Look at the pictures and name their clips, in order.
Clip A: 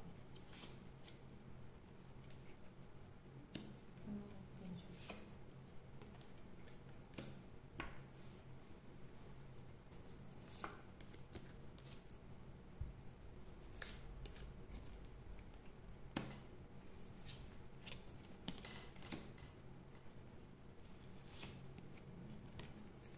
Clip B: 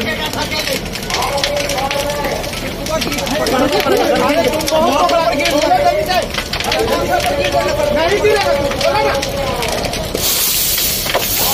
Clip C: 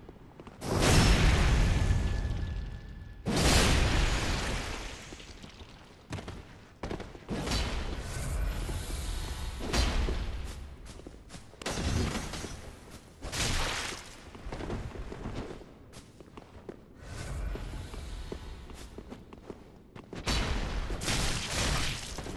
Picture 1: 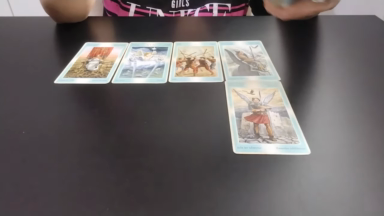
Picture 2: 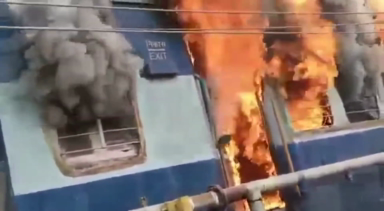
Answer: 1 A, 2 B